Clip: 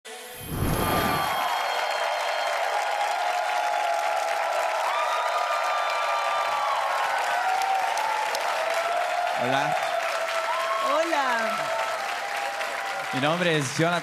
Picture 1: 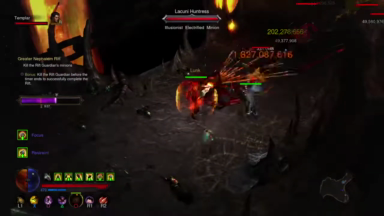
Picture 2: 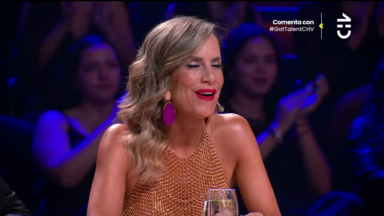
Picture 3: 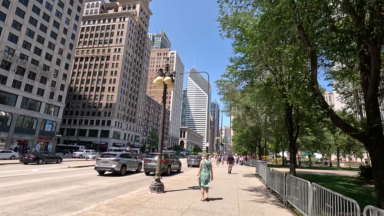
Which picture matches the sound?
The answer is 2